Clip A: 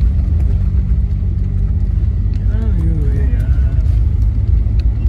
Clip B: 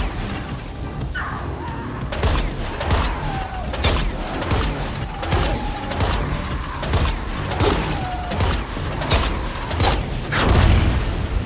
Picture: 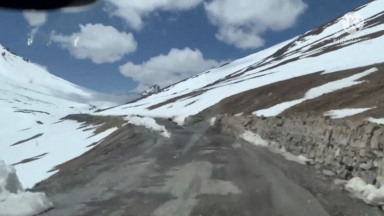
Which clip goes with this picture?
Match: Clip A